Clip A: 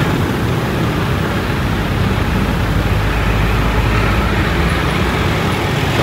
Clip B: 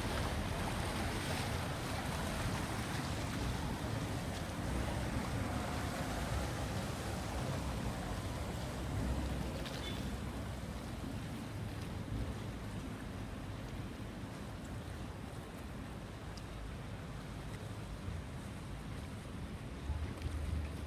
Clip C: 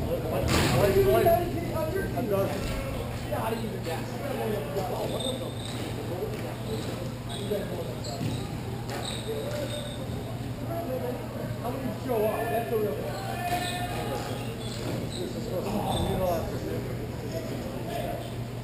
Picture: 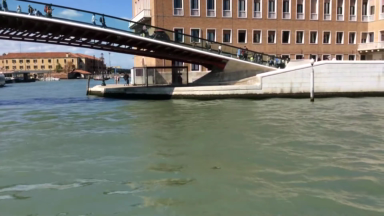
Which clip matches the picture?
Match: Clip B